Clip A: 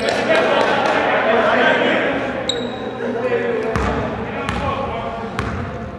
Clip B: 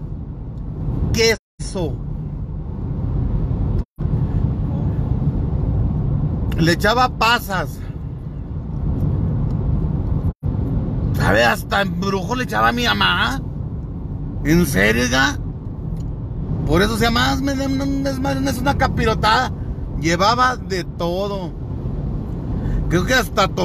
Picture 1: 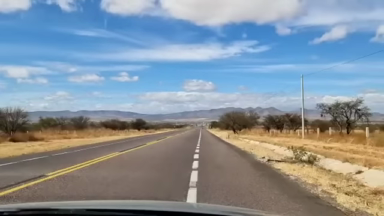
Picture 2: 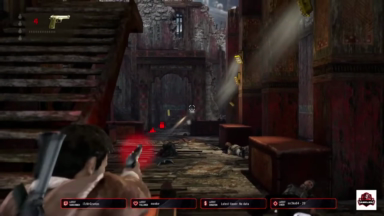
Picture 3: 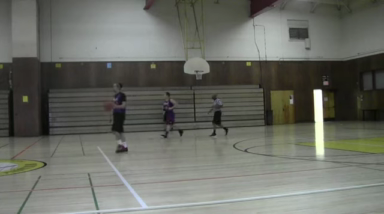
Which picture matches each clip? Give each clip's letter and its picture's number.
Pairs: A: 3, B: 1